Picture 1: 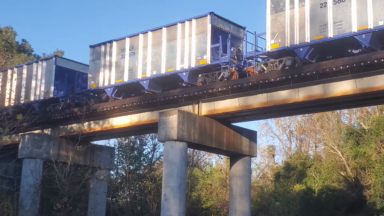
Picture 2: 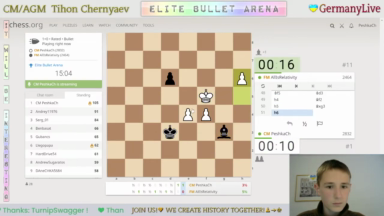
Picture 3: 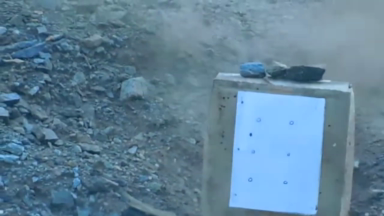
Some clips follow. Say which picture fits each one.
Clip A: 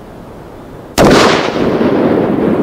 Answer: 3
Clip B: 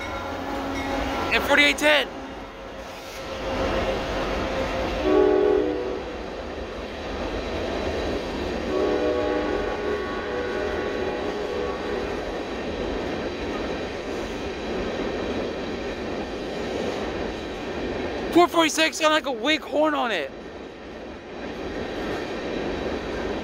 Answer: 1